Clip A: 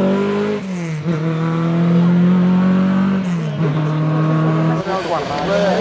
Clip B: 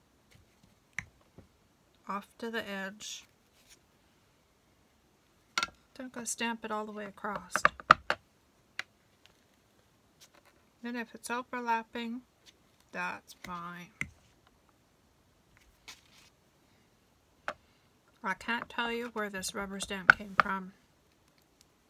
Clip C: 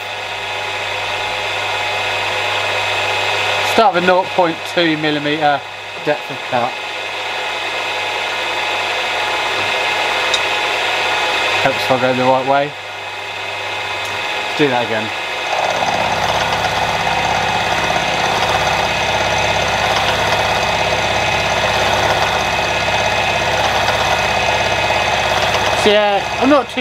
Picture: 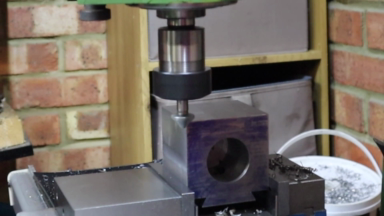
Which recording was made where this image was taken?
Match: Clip C